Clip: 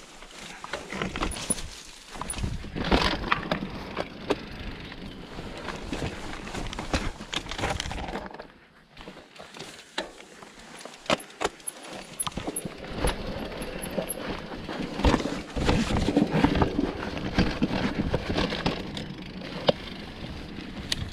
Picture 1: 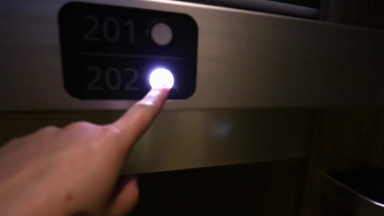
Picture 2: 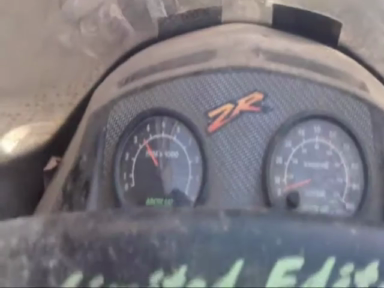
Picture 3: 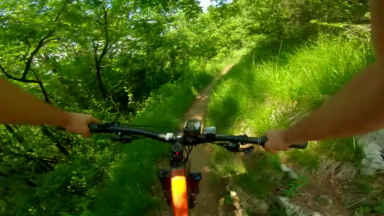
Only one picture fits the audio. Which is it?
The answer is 3